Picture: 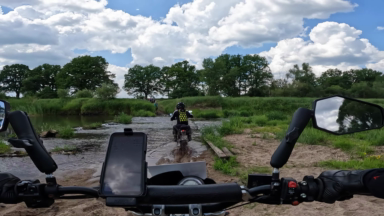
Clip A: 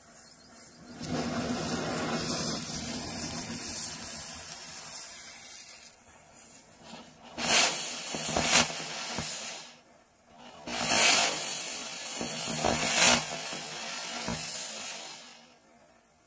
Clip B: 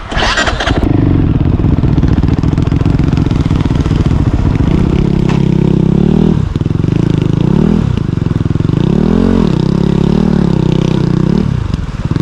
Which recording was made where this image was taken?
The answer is B